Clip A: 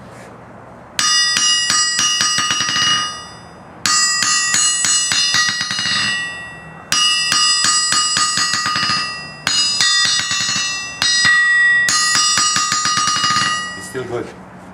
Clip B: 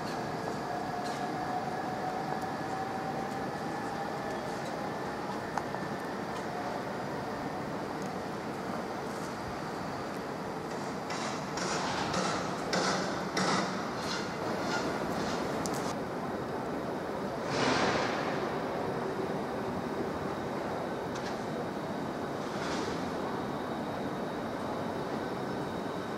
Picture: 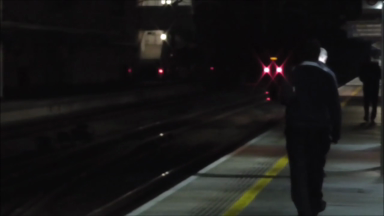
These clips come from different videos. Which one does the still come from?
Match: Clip B